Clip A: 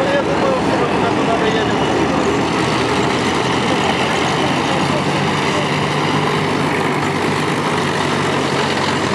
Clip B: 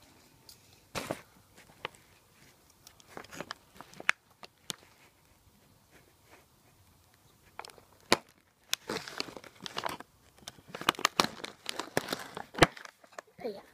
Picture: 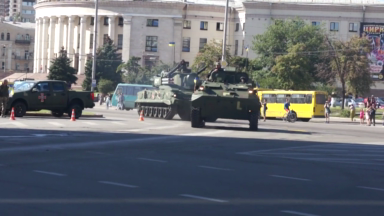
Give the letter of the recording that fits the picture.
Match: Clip A